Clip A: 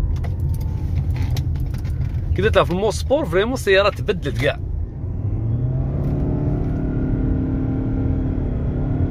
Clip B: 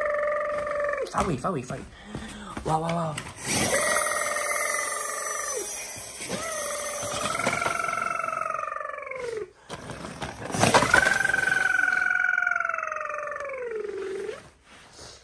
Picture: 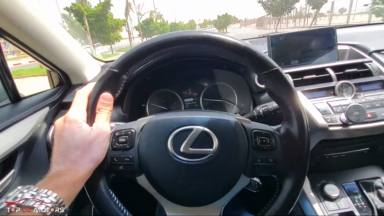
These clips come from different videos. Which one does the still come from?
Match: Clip A